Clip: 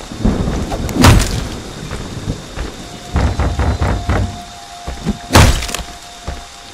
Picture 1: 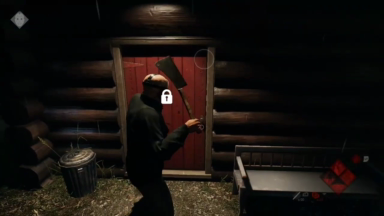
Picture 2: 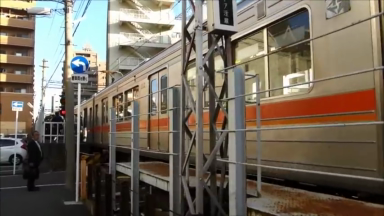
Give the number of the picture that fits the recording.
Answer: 1